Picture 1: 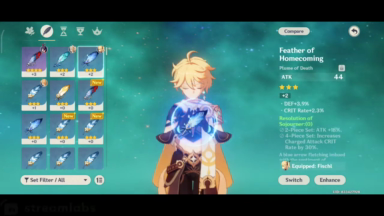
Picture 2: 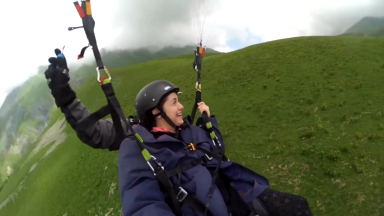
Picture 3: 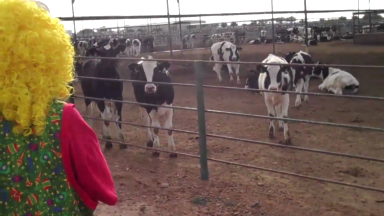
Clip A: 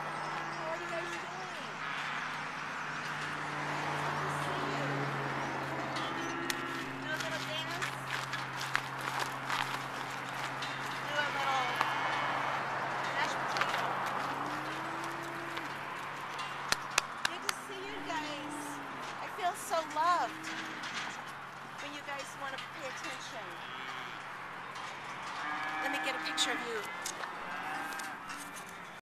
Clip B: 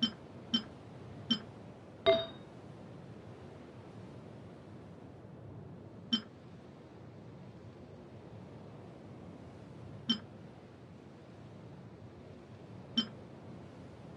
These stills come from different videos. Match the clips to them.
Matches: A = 3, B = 1